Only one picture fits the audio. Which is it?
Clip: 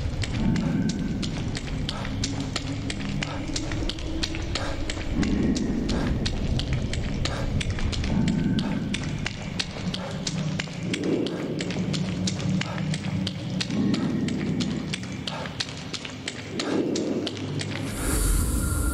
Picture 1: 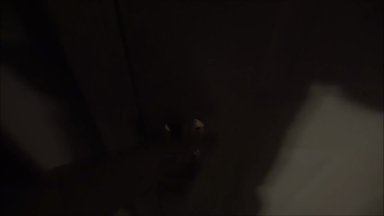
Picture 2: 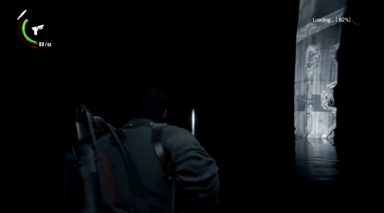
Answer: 2